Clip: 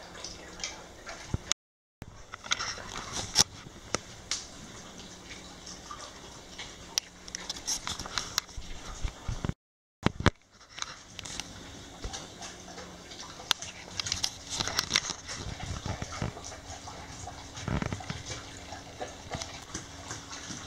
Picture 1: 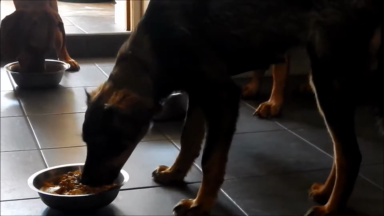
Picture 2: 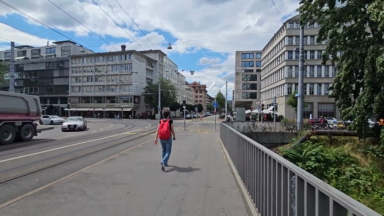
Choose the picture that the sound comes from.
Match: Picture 1